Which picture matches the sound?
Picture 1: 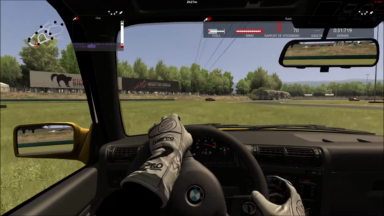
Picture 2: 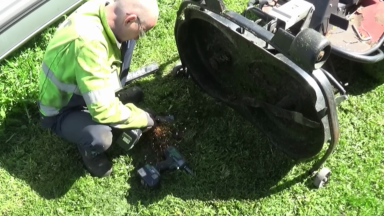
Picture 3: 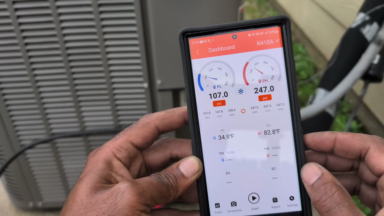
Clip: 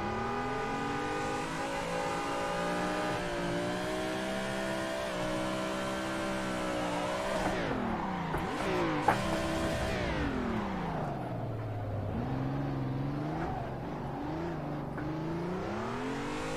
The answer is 1